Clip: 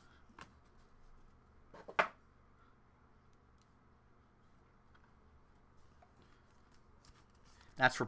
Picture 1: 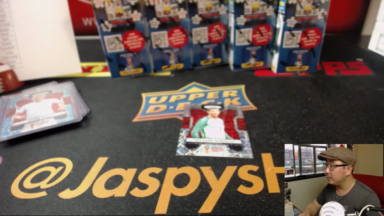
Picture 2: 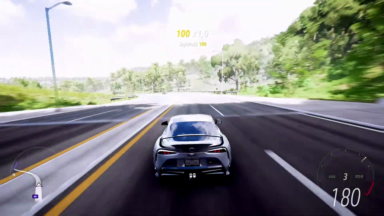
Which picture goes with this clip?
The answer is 1